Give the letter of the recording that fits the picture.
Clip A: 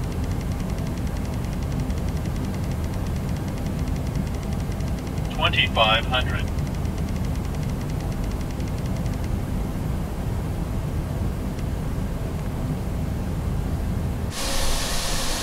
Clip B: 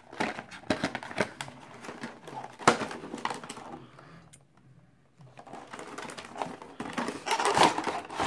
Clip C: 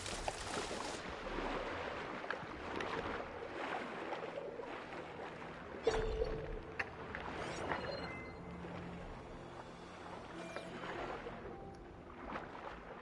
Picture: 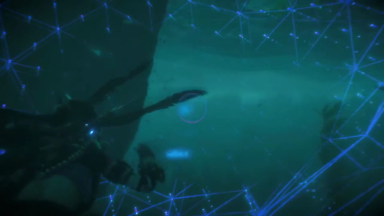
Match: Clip C